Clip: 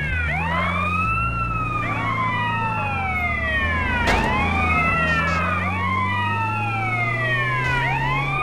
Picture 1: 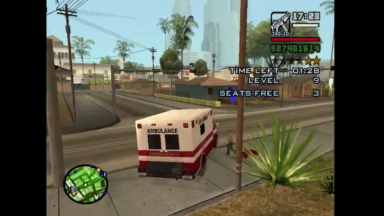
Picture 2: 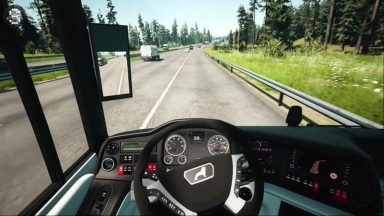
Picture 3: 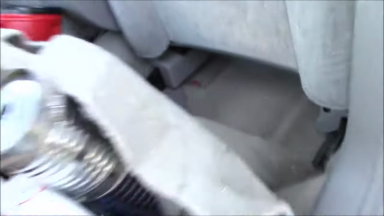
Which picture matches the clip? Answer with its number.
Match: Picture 1